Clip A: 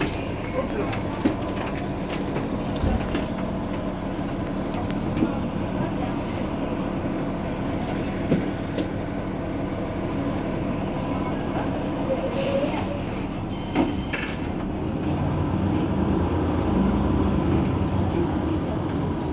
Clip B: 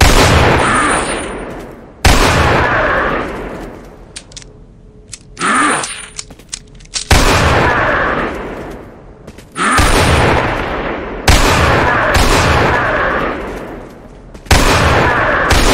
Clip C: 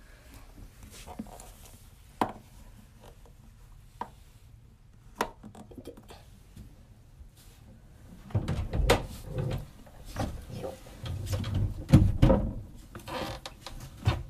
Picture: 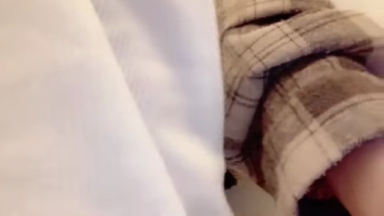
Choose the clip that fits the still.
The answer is C